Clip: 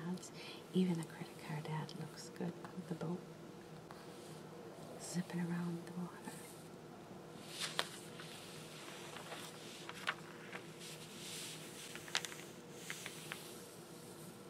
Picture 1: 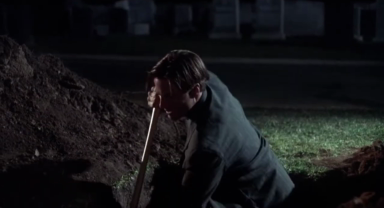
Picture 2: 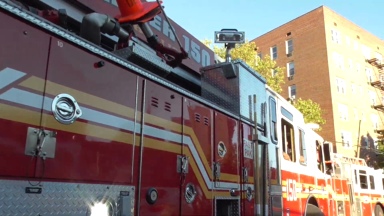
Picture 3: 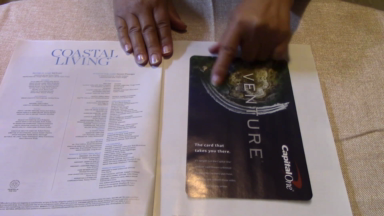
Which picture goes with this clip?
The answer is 3